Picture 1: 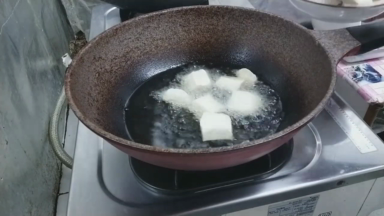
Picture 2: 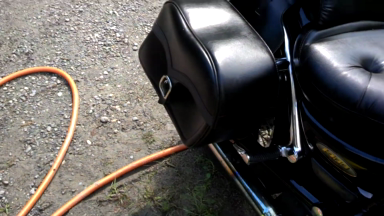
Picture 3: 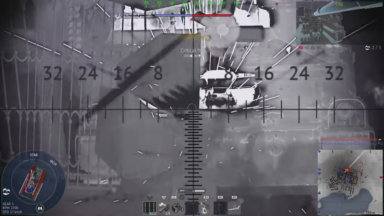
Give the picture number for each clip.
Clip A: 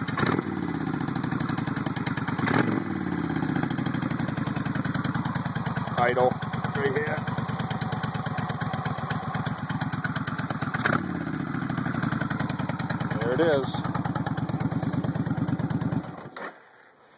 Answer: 2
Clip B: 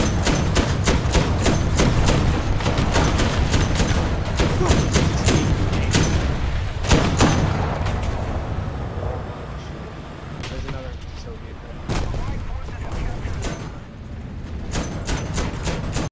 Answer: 3